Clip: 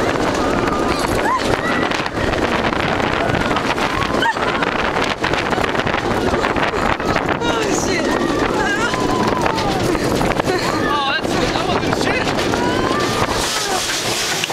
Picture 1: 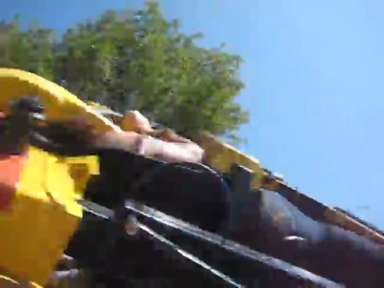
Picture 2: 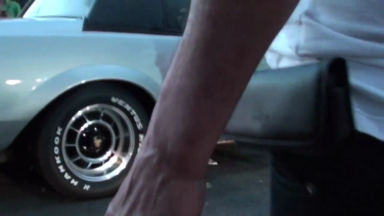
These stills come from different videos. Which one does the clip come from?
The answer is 1